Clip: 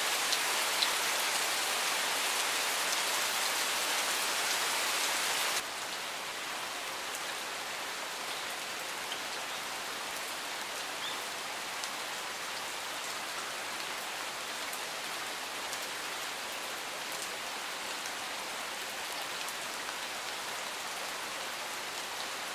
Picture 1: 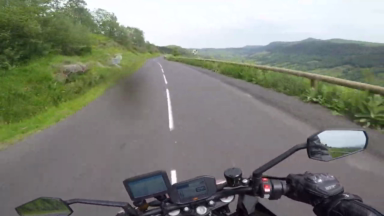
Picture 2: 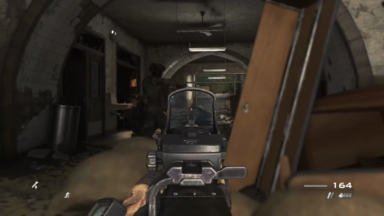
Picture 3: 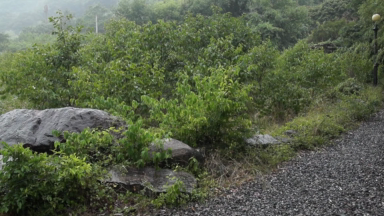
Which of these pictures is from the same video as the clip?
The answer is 3